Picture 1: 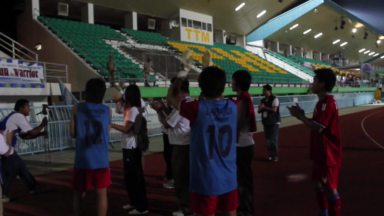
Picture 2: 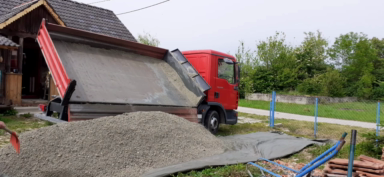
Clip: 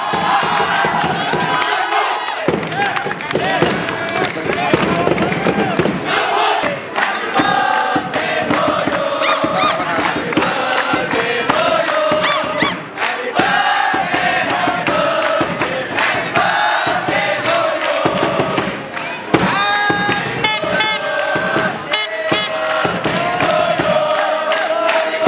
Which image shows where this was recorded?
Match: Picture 1